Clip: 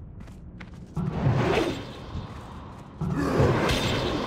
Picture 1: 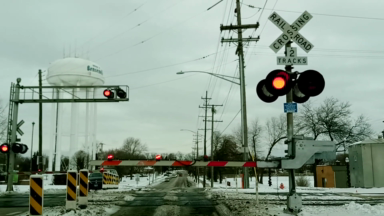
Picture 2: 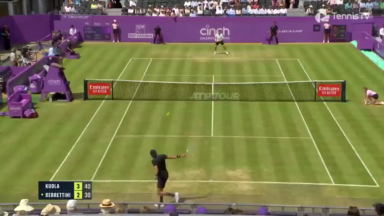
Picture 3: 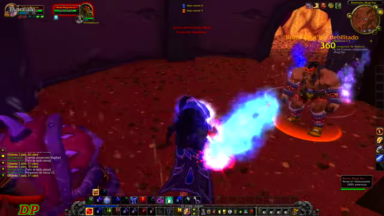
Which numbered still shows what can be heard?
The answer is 3